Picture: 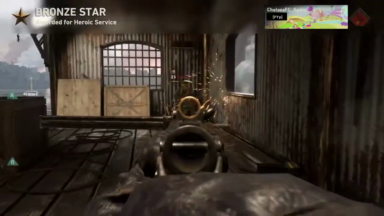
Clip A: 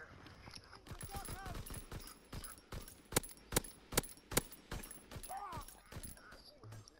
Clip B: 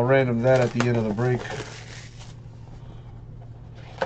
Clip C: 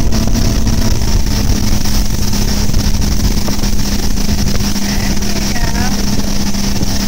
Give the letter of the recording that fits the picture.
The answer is A